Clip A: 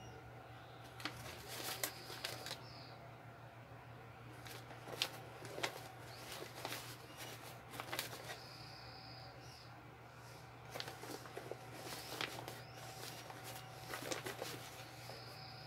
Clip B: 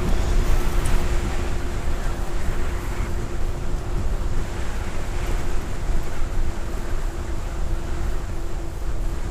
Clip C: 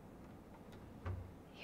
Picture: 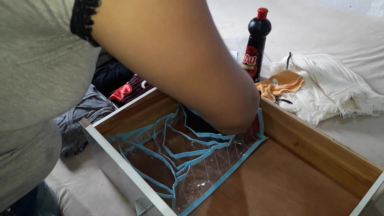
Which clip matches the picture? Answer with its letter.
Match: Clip A